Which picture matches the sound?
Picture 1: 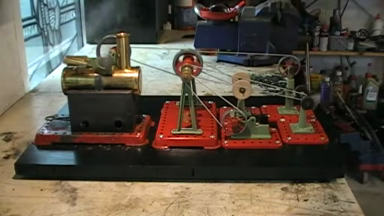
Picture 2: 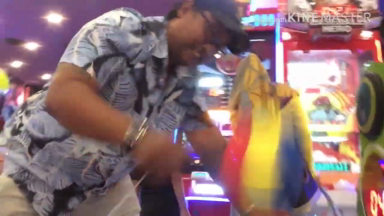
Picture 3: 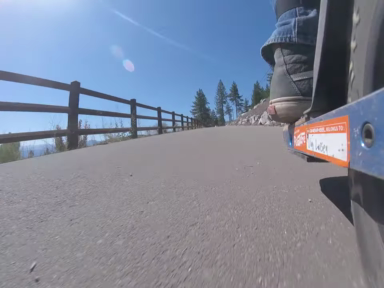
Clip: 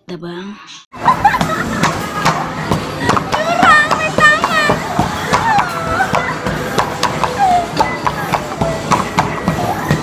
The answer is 2